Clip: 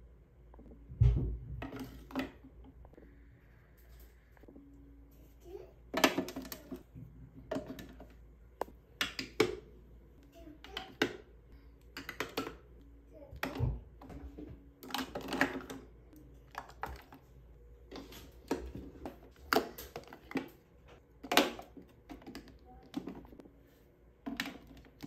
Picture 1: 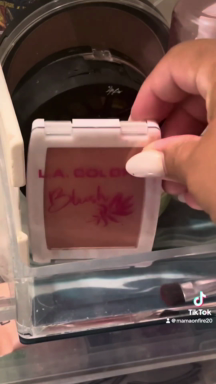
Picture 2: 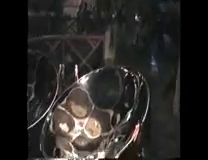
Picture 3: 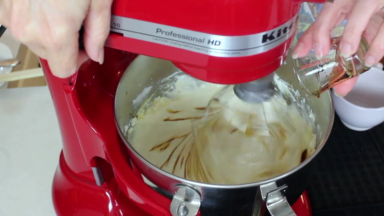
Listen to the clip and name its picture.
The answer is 1